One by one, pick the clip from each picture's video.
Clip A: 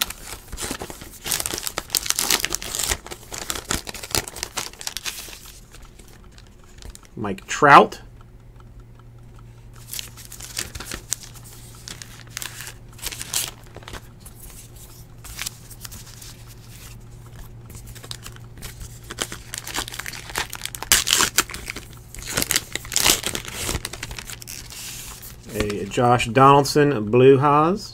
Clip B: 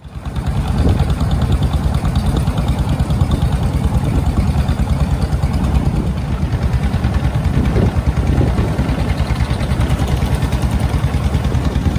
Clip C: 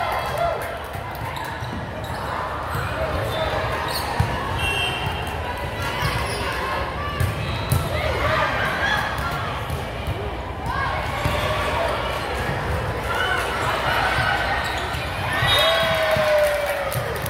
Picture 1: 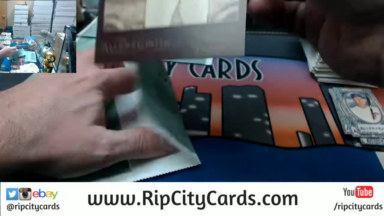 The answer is A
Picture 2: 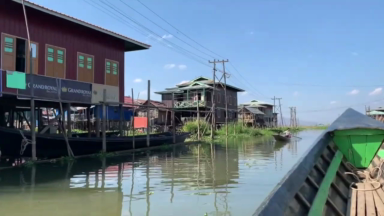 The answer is B